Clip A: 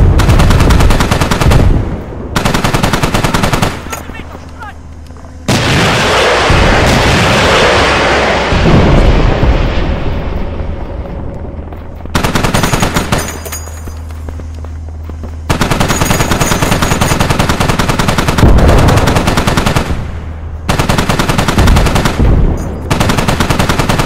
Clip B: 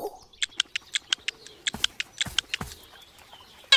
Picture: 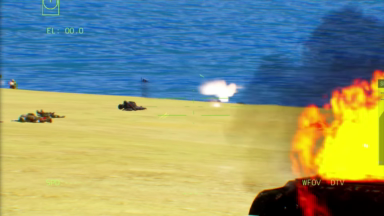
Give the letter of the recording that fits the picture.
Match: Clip A